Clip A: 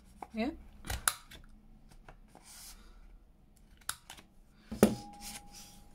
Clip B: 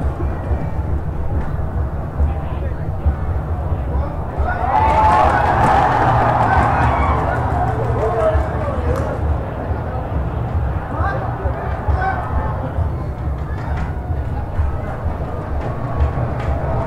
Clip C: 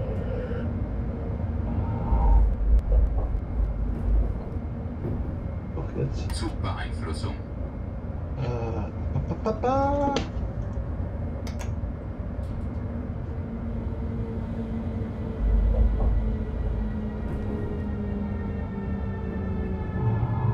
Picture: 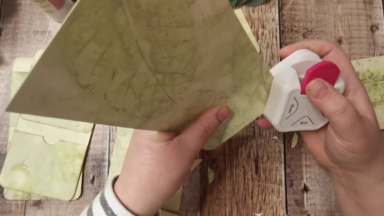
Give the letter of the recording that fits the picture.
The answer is A